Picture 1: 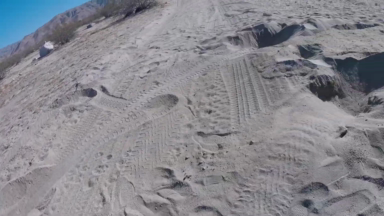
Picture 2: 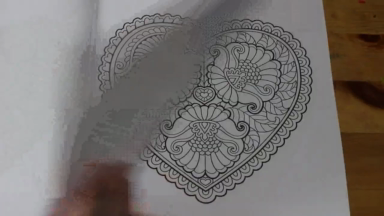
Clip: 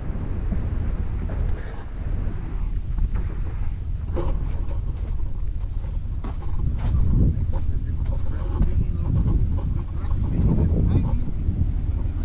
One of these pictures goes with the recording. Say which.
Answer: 1